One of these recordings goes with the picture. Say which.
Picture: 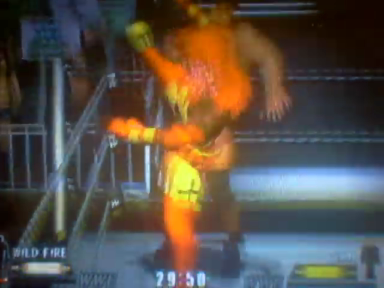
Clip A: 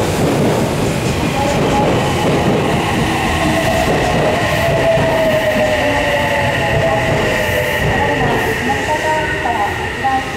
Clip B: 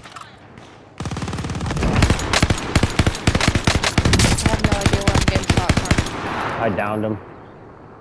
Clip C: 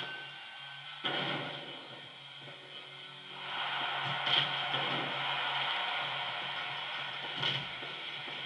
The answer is C